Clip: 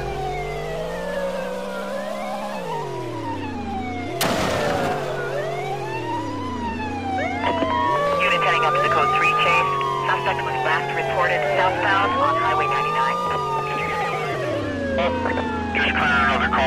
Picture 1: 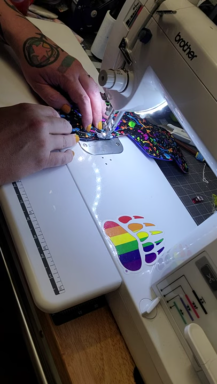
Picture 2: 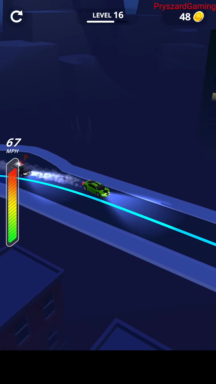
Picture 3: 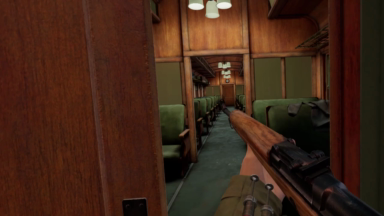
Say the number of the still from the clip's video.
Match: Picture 2